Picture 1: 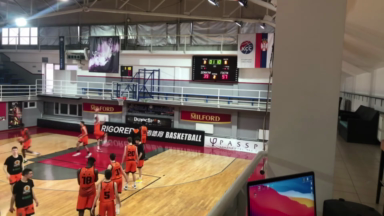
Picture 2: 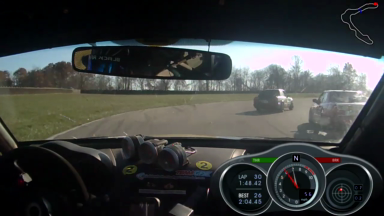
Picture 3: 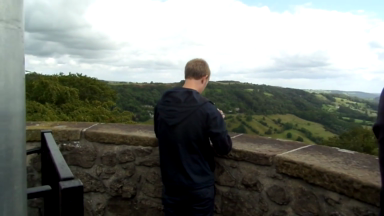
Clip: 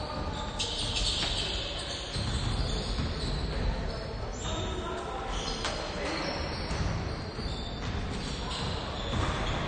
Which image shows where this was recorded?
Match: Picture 1